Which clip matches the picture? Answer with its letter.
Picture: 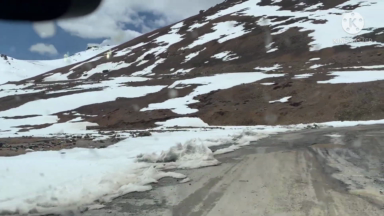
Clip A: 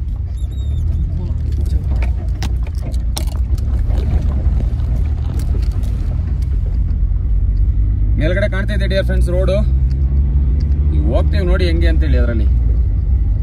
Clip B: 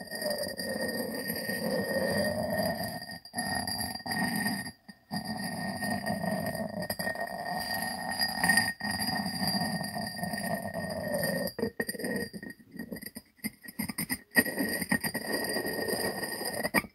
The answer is A